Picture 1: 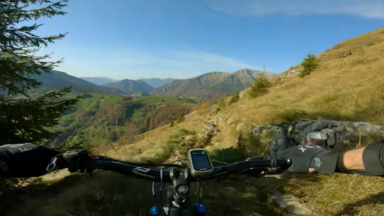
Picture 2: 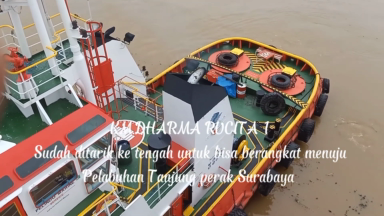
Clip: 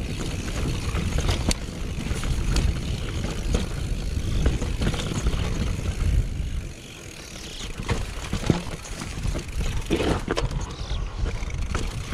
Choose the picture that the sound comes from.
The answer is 1